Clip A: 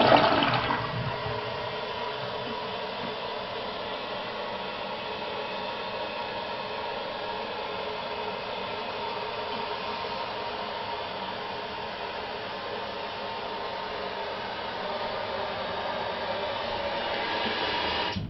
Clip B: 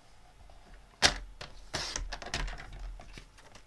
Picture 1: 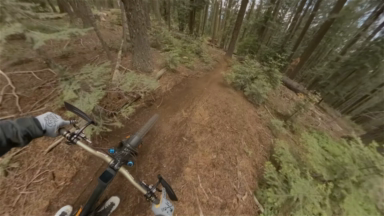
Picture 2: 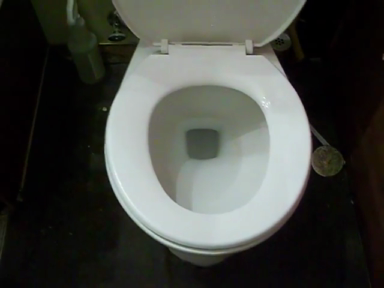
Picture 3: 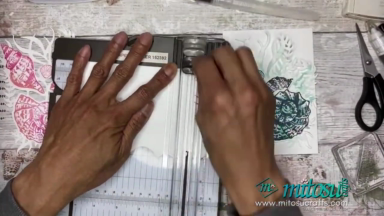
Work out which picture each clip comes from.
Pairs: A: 2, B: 3